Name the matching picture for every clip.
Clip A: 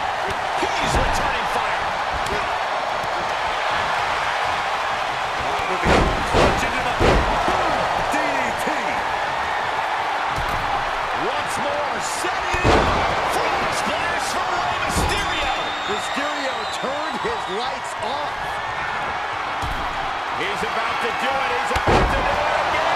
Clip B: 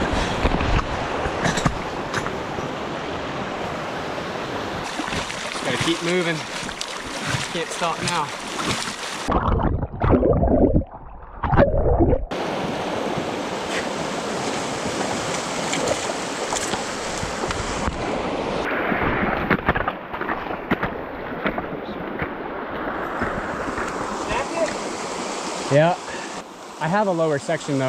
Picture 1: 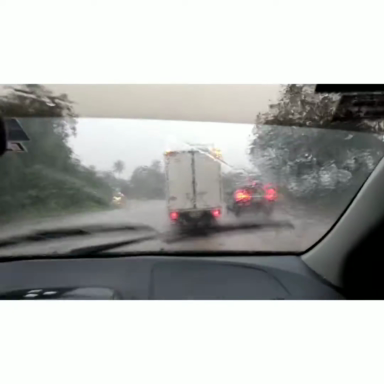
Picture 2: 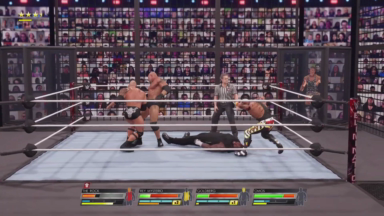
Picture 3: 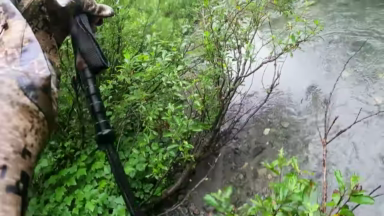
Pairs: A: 2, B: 3